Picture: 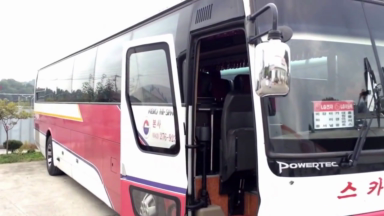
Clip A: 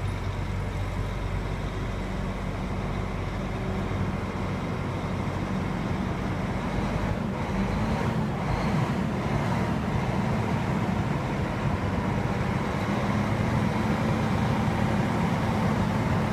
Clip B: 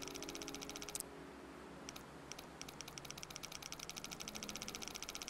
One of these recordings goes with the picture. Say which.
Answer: A